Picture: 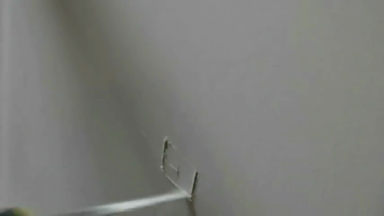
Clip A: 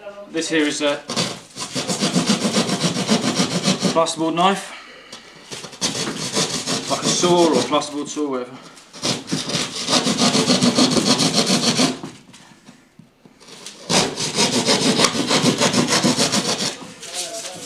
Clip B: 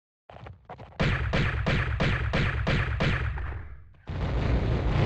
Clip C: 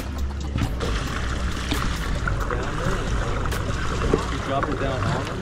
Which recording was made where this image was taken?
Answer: A